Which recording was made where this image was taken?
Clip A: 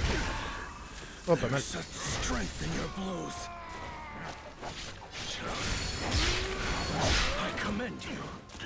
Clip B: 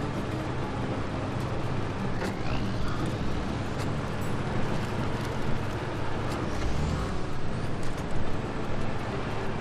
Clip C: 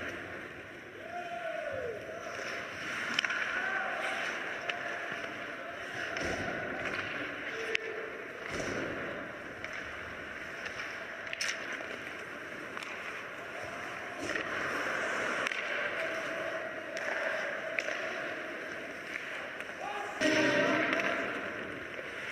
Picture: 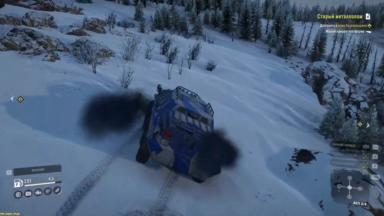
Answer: B